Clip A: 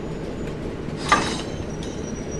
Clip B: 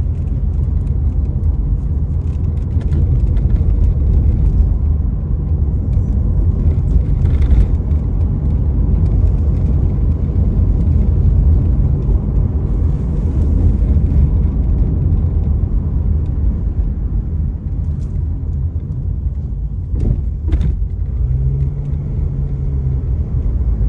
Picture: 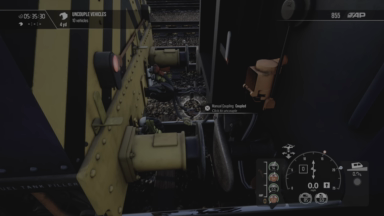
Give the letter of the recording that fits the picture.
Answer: A